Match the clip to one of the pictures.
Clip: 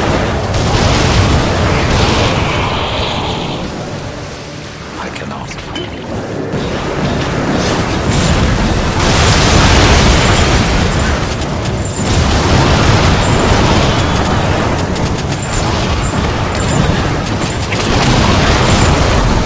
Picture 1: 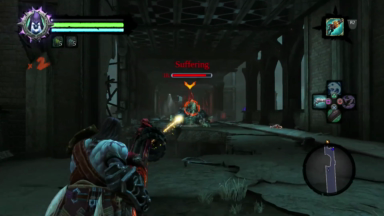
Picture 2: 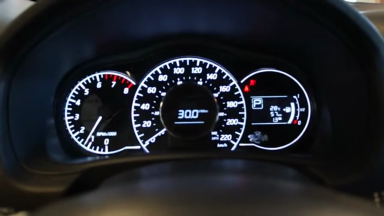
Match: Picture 1